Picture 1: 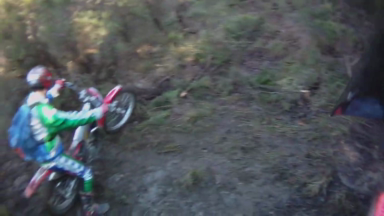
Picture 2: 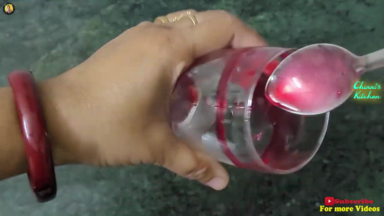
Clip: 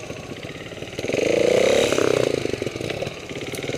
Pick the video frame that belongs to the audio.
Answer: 1